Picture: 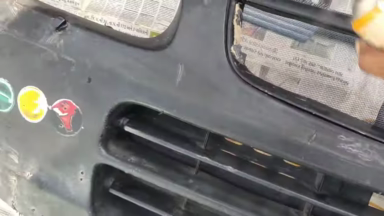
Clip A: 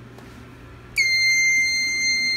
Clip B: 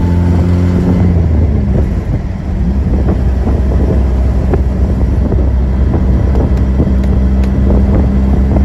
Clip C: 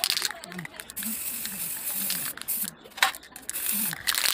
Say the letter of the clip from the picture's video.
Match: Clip C